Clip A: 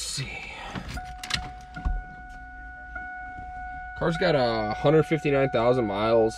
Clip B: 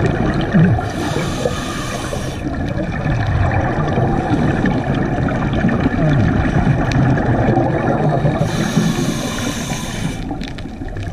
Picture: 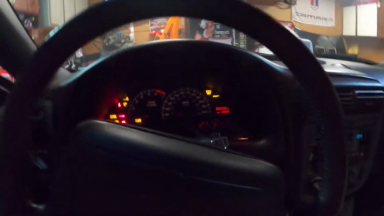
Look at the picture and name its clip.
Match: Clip A